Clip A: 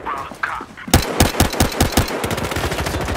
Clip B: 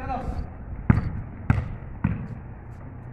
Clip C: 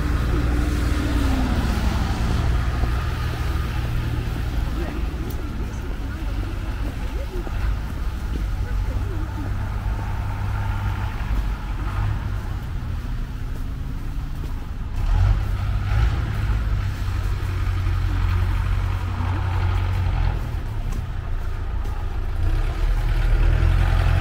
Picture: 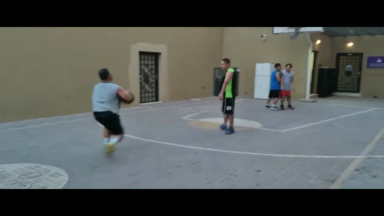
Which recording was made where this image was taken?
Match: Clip B